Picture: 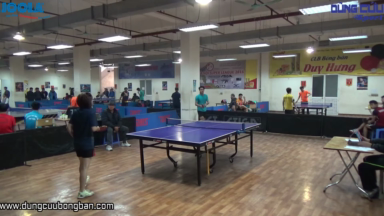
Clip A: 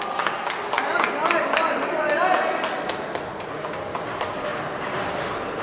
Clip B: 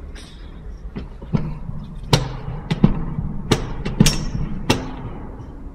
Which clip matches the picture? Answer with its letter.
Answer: A